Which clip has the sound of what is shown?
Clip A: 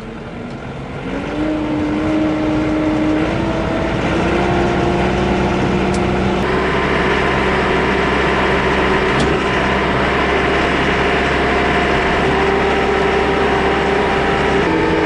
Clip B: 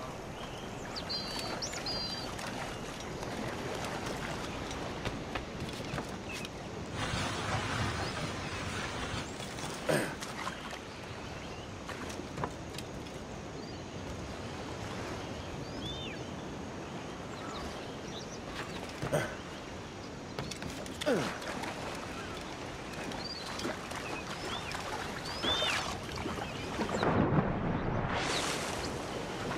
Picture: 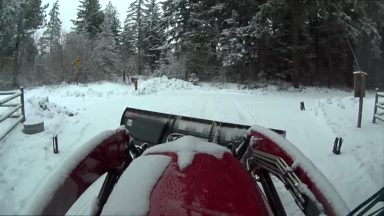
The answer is A